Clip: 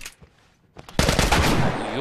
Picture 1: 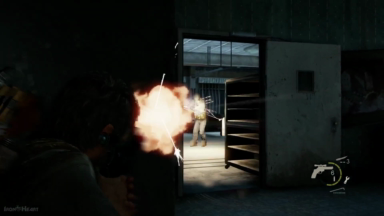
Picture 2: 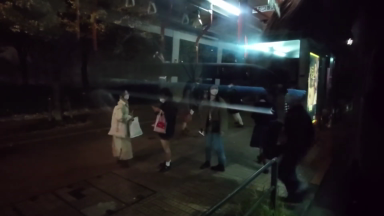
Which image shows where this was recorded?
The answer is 1